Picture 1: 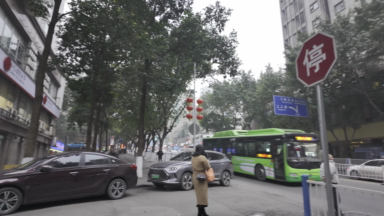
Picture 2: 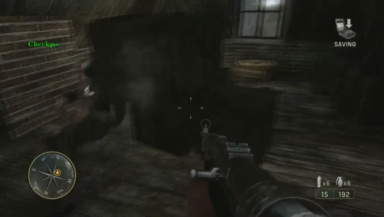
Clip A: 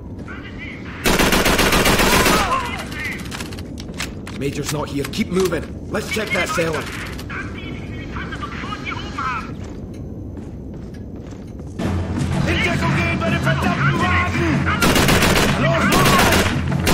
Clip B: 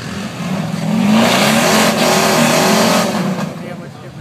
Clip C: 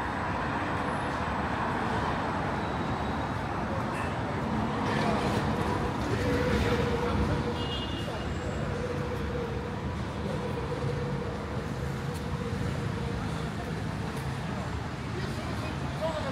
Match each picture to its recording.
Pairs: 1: C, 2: A